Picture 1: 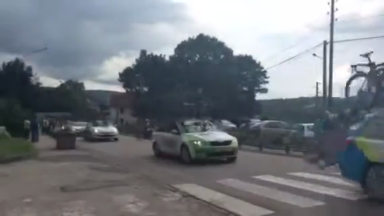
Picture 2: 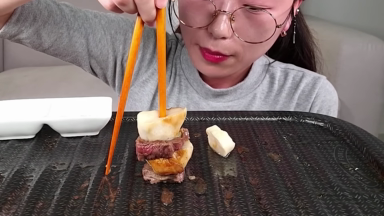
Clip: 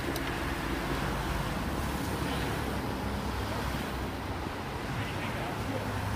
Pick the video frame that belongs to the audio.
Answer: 1